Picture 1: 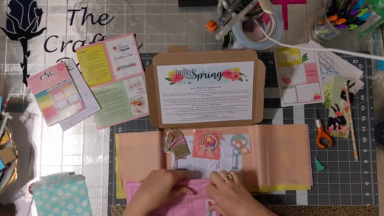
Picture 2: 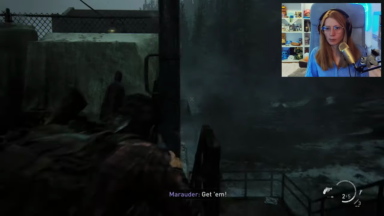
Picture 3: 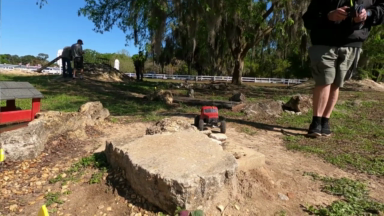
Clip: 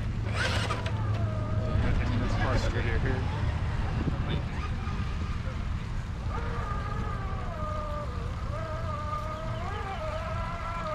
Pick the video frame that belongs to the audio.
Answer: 3